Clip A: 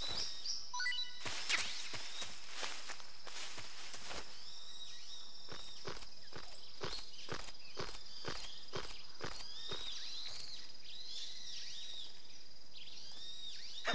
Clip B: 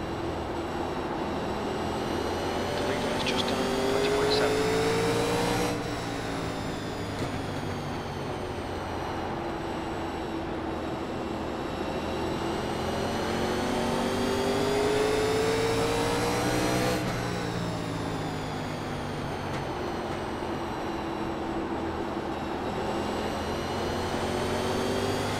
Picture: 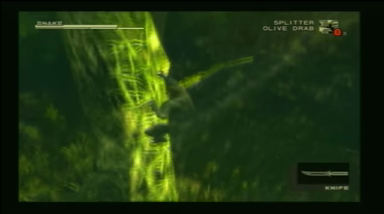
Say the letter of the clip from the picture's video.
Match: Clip A